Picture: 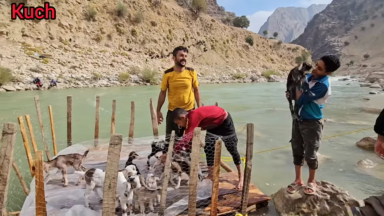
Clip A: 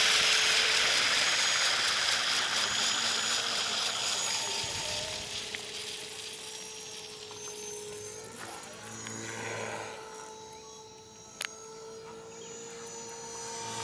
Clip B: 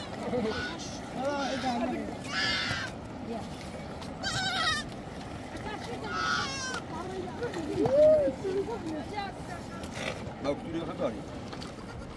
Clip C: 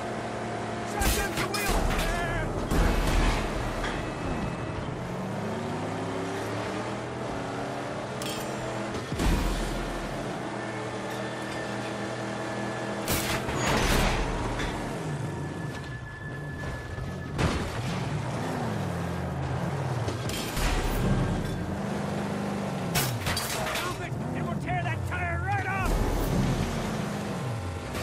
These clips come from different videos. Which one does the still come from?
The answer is B